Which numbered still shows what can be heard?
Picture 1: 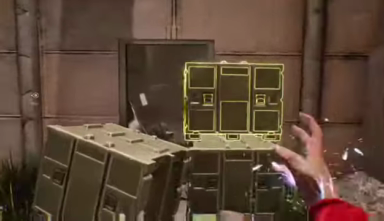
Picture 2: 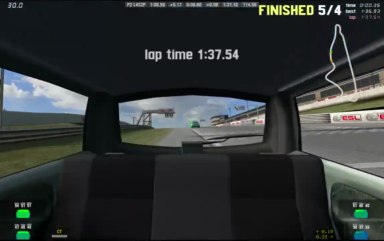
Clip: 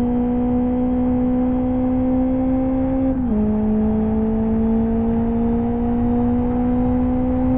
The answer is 2